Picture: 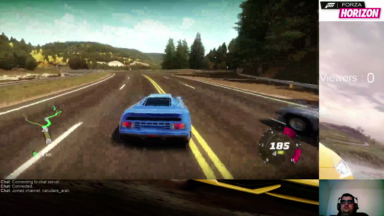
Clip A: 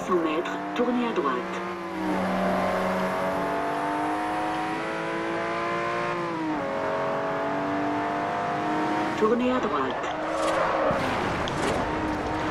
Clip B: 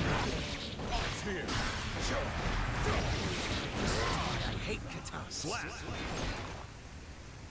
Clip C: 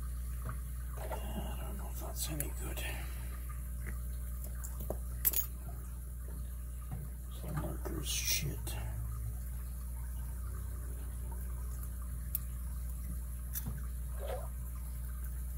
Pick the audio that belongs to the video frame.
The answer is A